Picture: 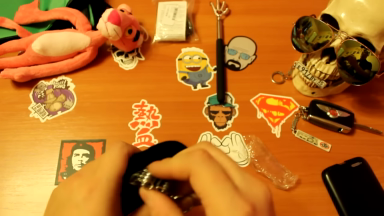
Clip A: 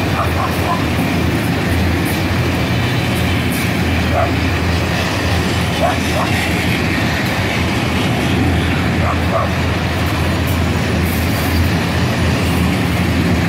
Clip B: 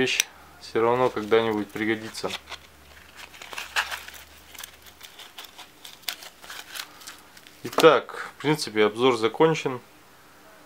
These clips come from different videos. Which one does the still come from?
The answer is B